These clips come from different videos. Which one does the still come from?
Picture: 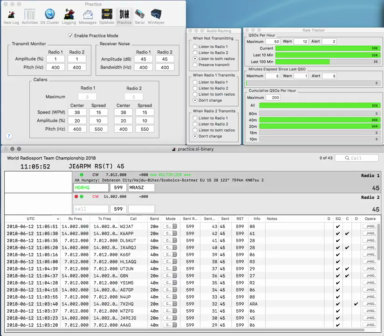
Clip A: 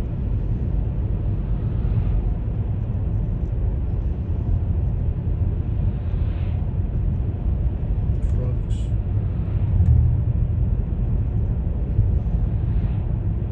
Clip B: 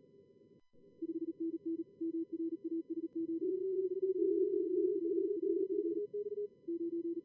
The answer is B